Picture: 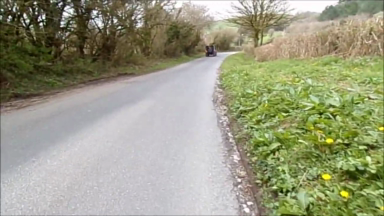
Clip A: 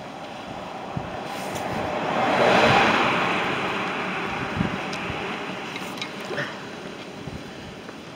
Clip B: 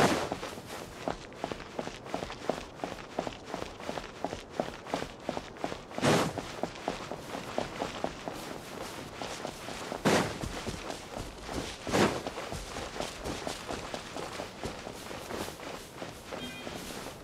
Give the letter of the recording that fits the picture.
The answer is A